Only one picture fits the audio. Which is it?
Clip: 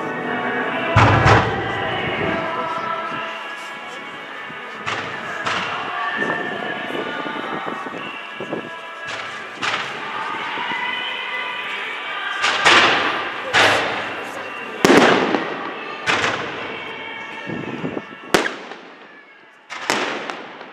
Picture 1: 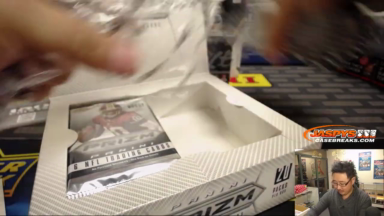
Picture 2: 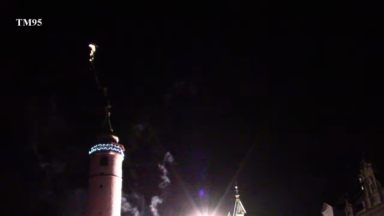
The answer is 2